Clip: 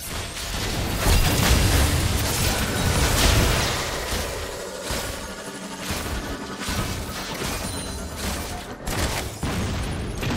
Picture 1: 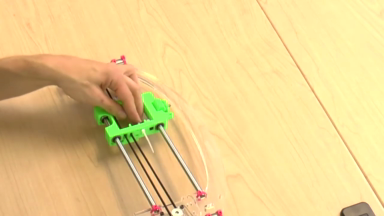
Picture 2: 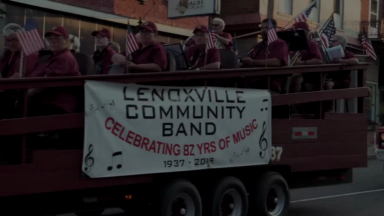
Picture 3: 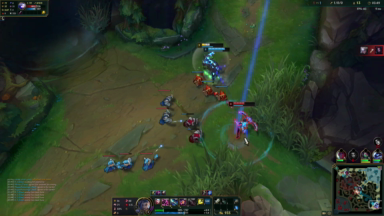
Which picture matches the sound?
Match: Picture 3